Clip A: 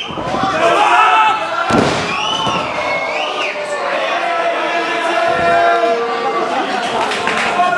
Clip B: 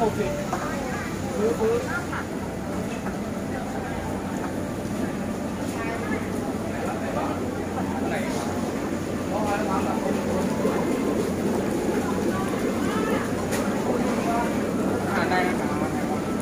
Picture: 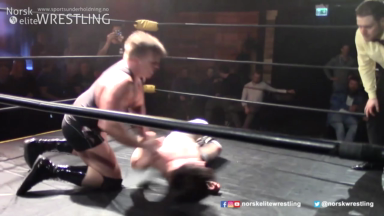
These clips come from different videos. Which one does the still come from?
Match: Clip A